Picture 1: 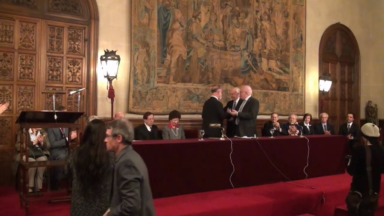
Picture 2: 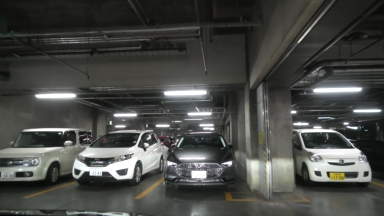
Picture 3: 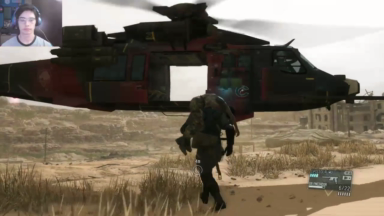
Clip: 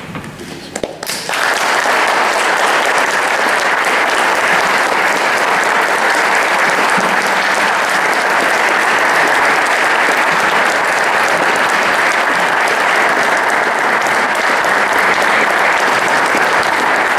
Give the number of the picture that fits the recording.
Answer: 1